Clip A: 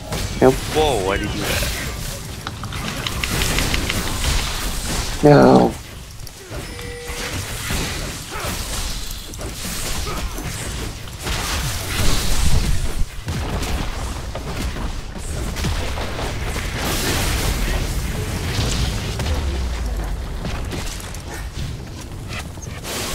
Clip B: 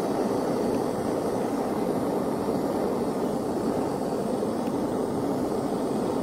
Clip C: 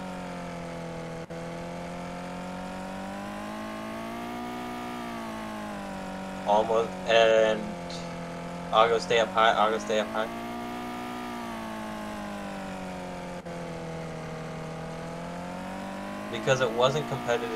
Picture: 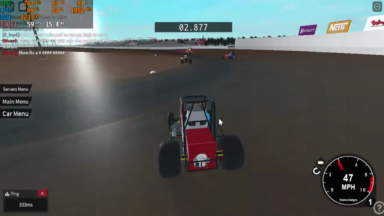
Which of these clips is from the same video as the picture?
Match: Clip C